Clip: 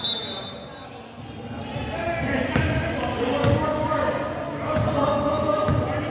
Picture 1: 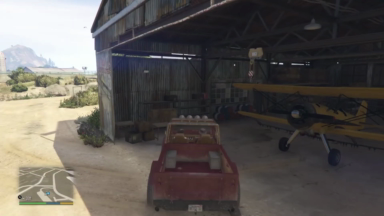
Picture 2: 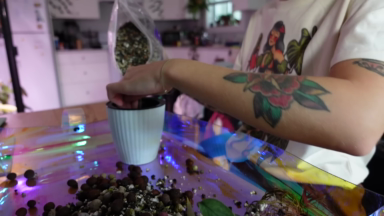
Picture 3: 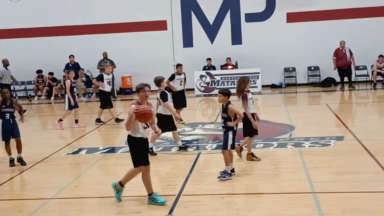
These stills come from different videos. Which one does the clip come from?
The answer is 3